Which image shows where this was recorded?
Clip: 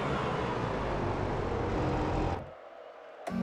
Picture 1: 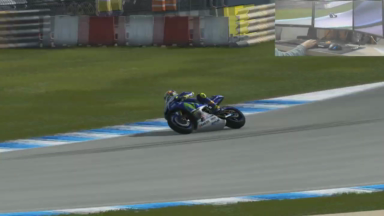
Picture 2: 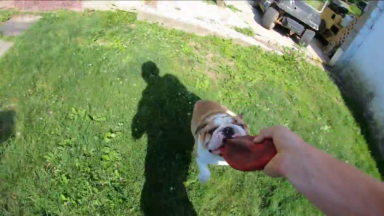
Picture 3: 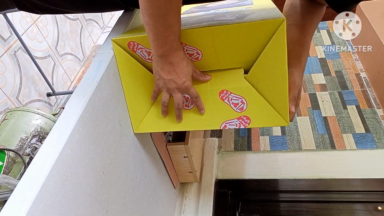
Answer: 1